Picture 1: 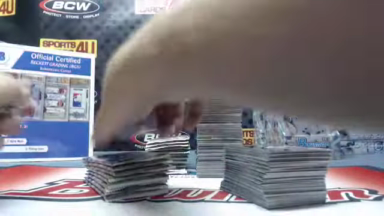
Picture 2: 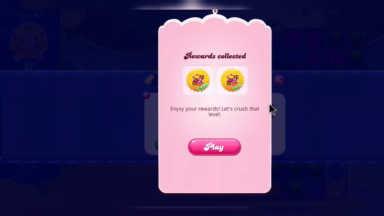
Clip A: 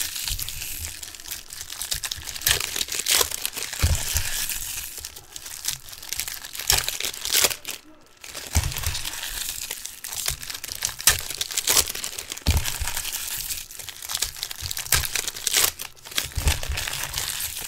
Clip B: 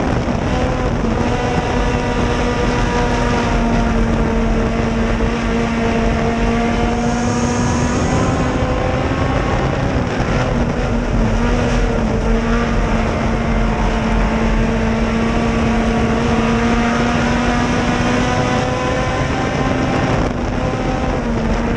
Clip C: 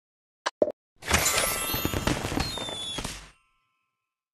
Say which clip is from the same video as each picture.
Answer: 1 A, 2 C